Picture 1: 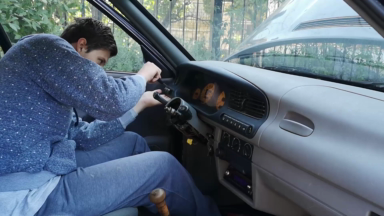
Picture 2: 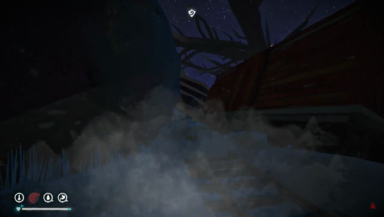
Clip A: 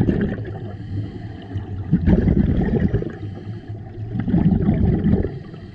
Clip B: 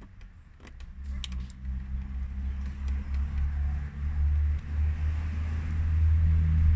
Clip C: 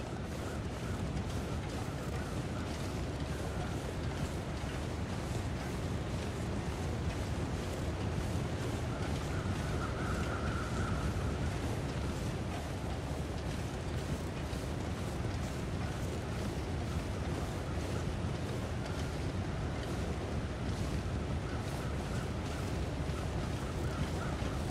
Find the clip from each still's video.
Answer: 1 B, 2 C